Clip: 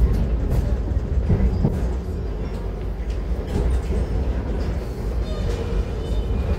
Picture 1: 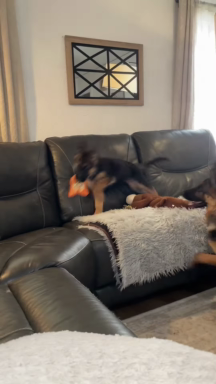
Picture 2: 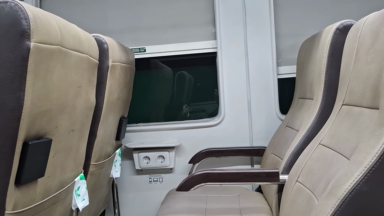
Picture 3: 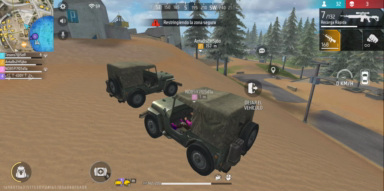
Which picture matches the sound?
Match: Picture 2